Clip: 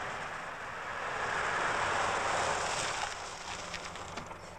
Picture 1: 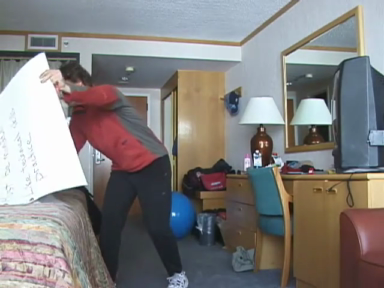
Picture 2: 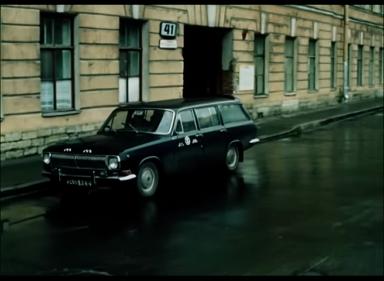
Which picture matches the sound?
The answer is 2